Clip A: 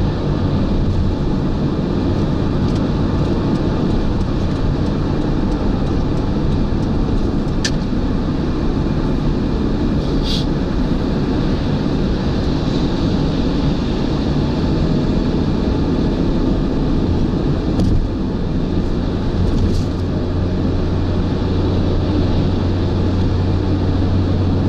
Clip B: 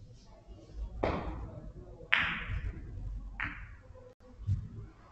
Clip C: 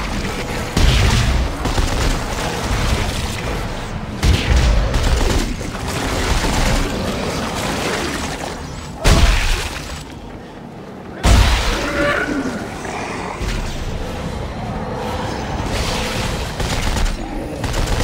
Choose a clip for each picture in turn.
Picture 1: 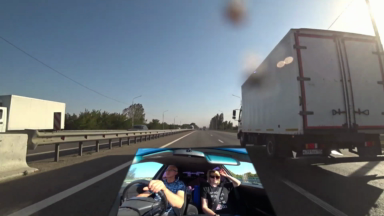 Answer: A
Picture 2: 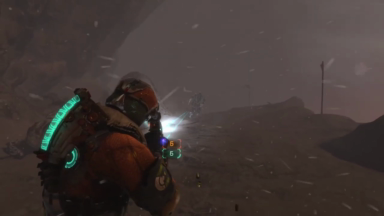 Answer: C